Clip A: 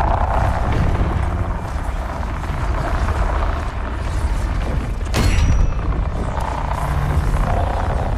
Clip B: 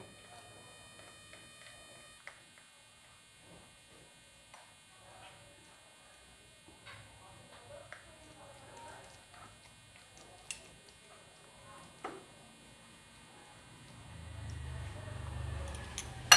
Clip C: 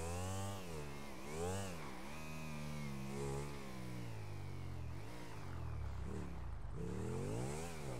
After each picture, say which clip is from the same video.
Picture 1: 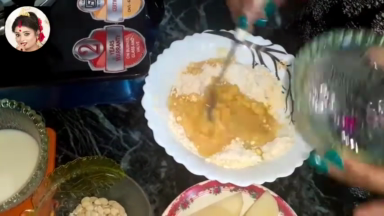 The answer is B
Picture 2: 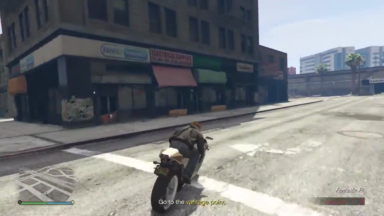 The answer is C